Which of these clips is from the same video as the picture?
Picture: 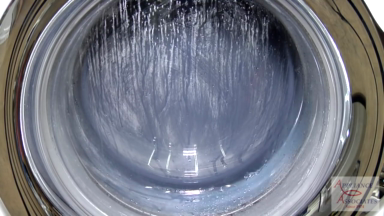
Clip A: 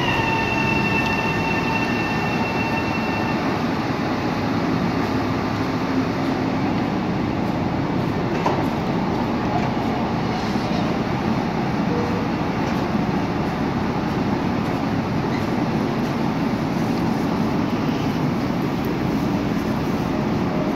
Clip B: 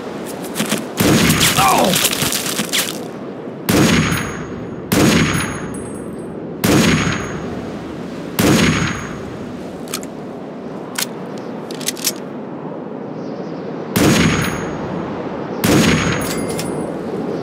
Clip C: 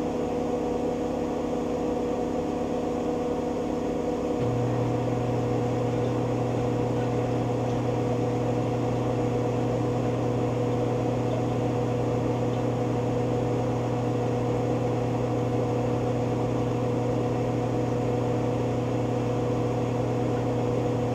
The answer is C